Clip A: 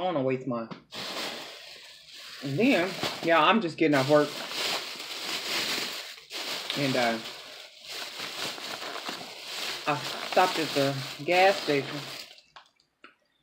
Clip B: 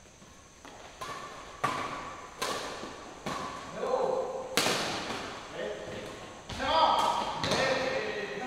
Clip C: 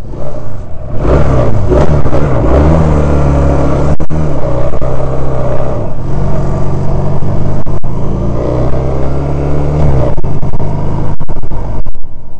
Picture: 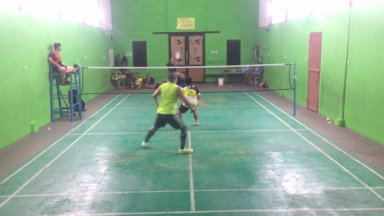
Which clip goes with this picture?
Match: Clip B